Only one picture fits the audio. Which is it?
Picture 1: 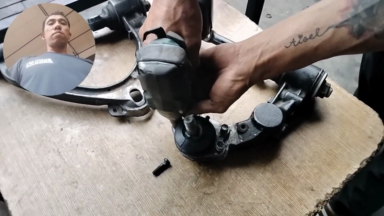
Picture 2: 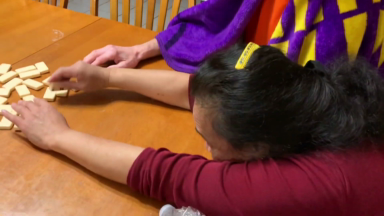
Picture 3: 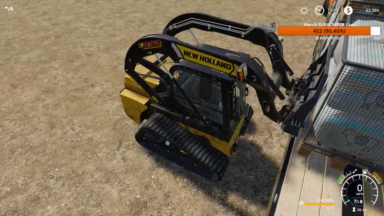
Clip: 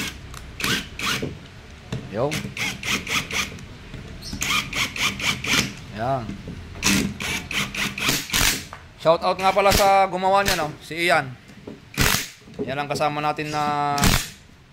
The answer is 1